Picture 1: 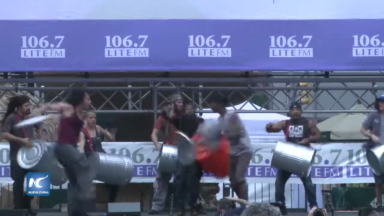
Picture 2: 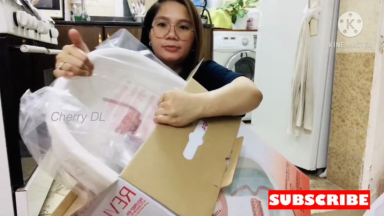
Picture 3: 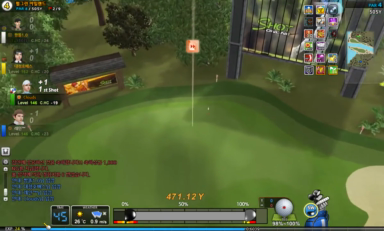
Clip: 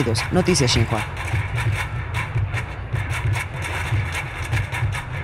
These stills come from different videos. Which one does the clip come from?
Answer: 1